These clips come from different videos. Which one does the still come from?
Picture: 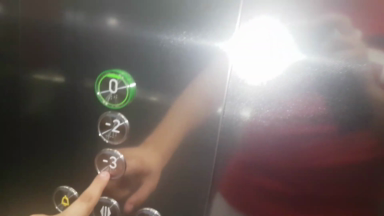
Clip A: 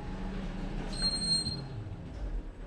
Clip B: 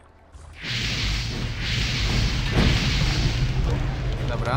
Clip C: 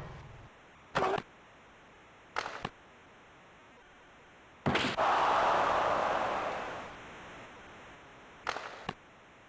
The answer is A